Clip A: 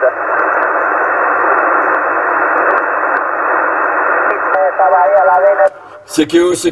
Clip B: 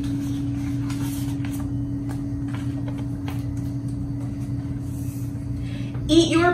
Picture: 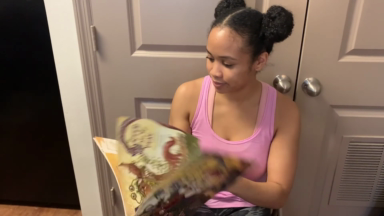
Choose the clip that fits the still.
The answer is B